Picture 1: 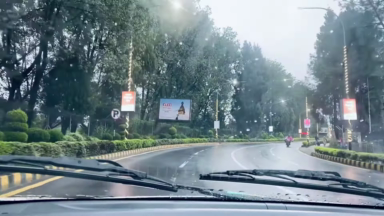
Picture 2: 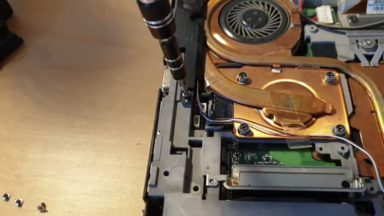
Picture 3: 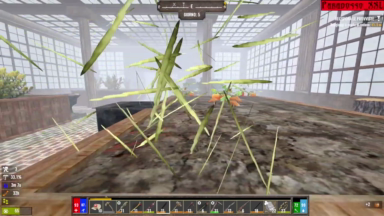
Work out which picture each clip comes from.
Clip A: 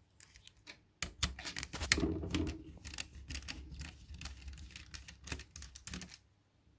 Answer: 2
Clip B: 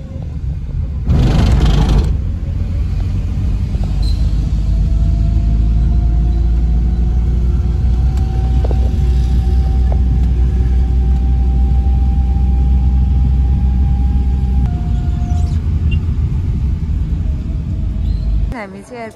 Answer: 1